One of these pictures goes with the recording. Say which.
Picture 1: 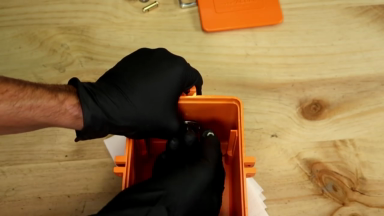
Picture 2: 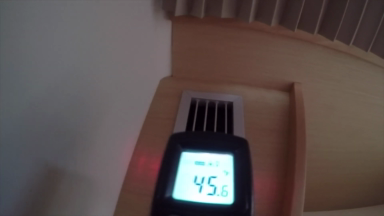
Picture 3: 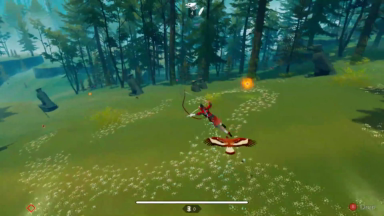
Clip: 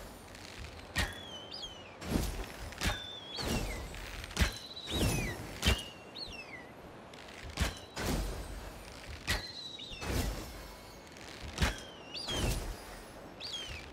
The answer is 3